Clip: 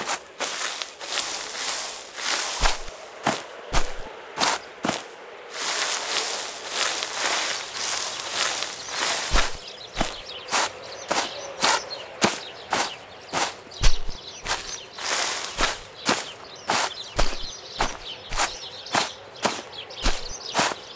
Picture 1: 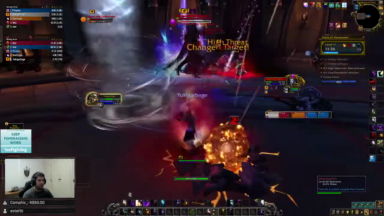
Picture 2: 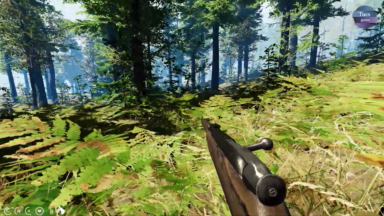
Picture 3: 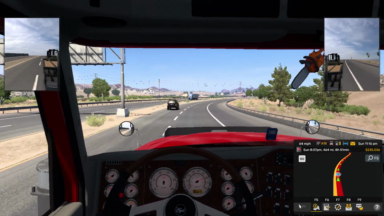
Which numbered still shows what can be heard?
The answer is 2